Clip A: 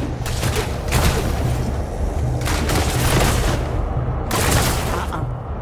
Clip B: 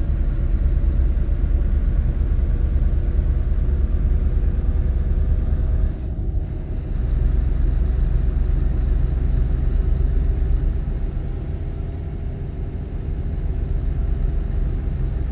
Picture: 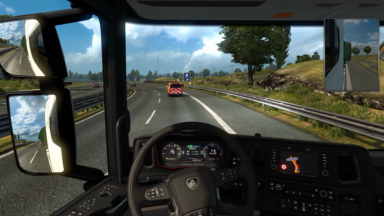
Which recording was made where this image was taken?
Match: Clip B